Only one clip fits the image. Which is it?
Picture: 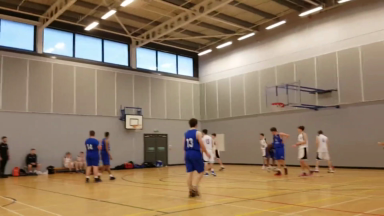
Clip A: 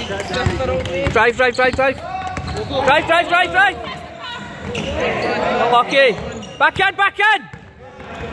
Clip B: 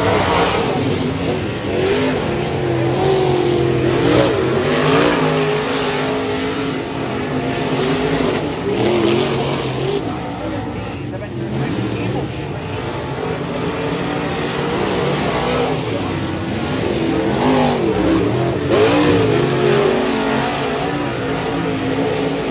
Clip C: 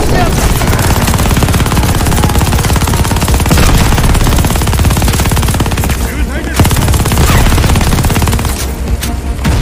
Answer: A